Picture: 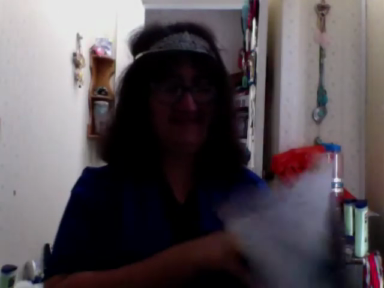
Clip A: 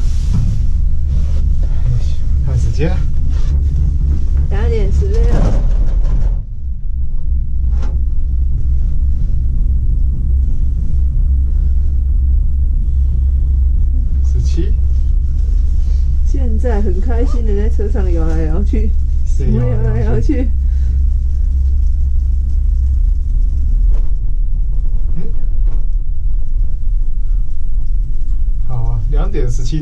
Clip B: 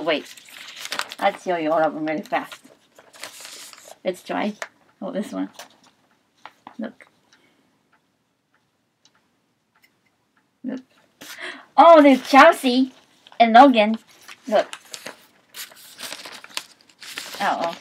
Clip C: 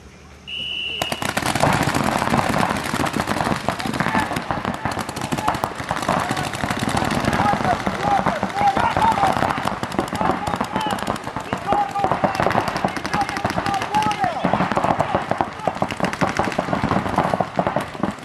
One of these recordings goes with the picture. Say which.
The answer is B